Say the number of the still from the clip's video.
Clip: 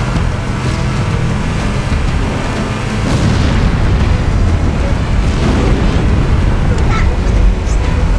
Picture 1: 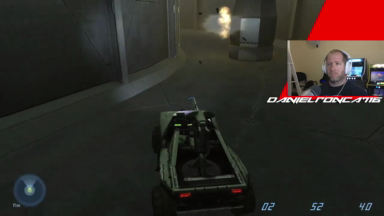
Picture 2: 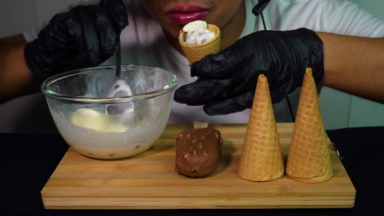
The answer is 1